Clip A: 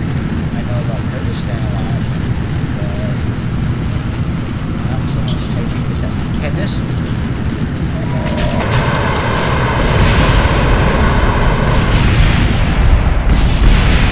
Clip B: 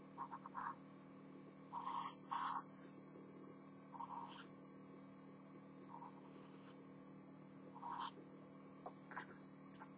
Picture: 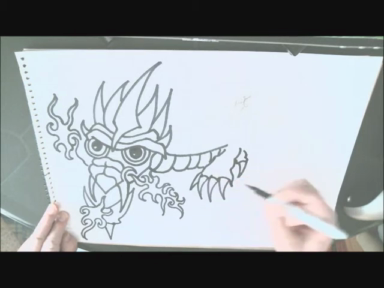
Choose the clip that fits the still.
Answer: B